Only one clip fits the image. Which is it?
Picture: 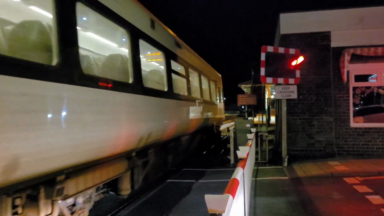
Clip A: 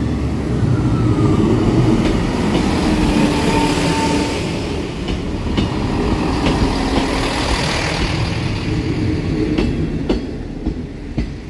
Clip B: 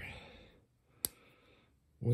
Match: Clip A